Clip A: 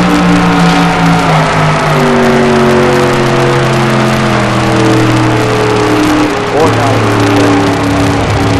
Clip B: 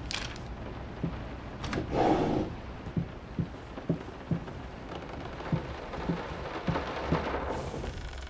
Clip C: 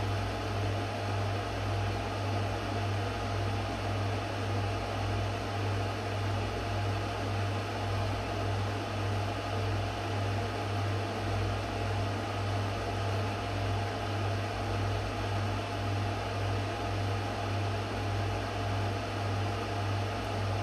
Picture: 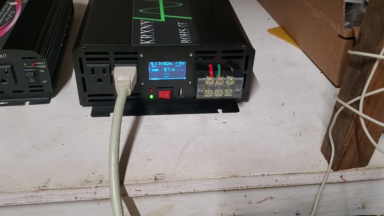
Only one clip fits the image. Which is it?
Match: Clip C